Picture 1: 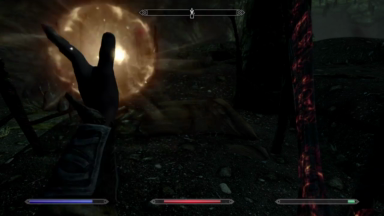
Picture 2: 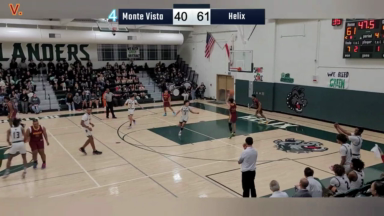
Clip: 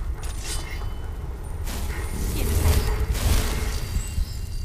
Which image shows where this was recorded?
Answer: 1